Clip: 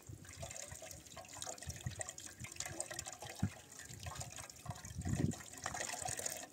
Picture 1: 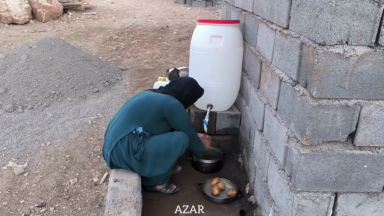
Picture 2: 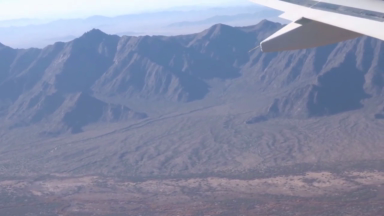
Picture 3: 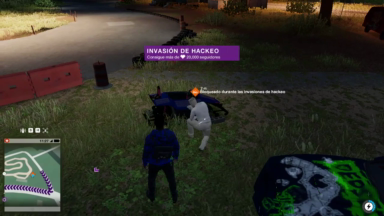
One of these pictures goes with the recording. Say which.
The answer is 1